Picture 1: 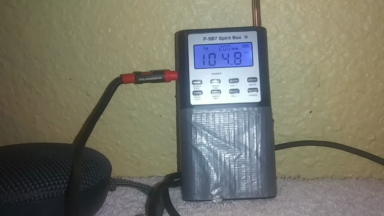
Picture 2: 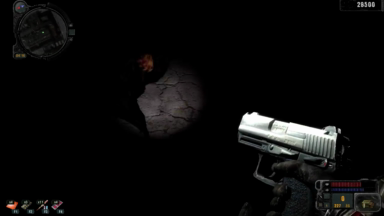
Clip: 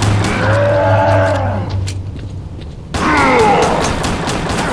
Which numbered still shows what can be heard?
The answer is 2